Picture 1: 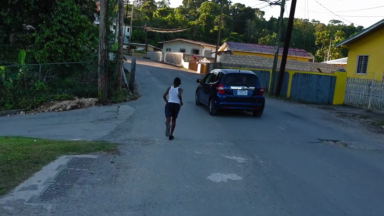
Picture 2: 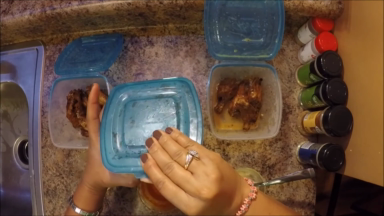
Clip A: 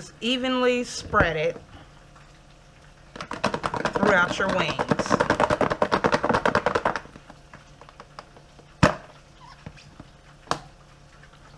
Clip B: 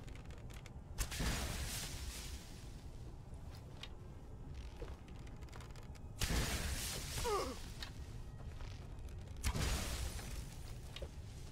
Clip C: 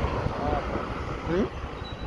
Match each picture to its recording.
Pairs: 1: C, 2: A